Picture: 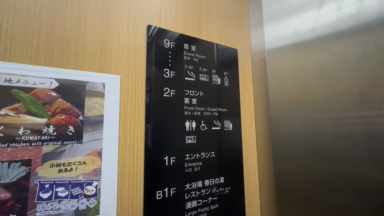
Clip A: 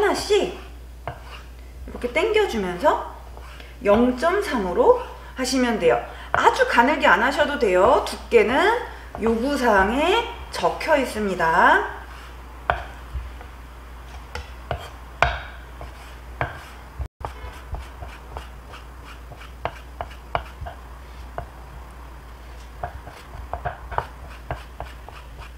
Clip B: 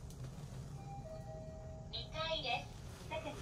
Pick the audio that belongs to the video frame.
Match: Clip B